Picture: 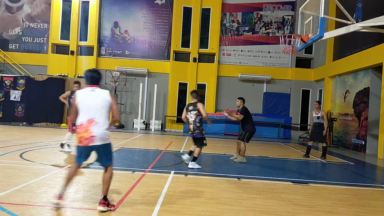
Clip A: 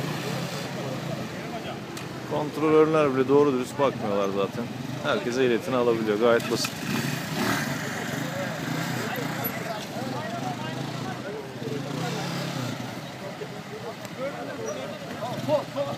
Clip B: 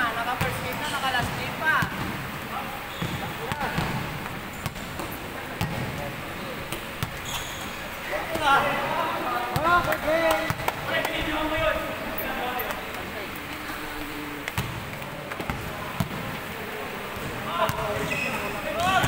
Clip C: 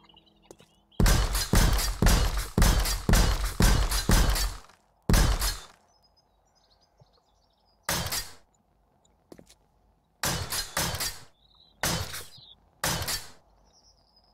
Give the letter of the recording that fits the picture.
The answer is B